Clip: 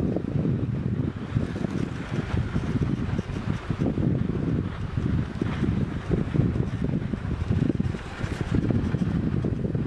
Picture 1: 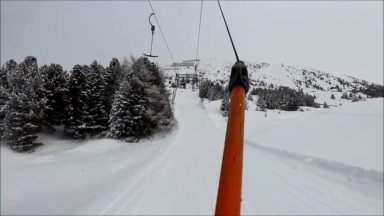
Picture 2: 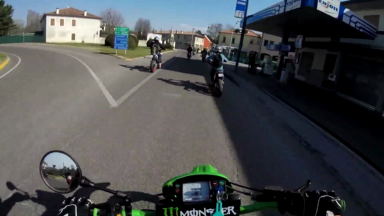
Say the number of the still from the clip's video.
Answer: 1